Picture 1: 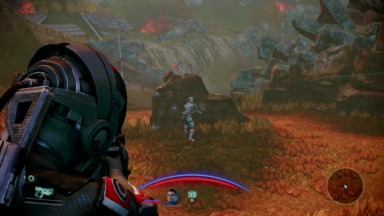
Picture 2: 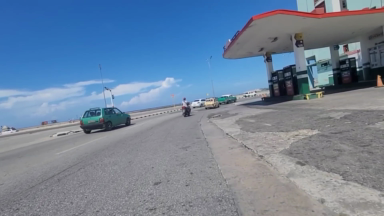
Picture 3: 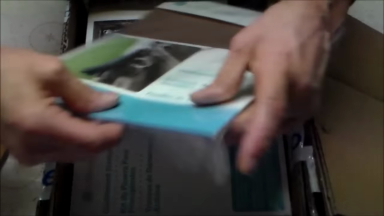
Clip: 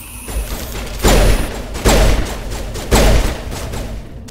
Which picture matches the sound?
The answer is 1